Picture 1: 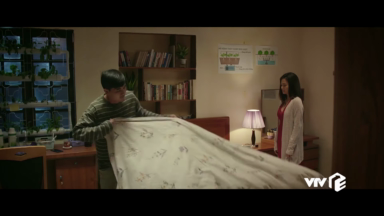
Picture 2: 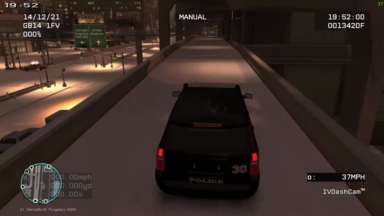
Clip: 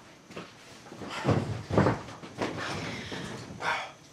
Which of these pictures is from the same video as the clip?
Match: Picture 1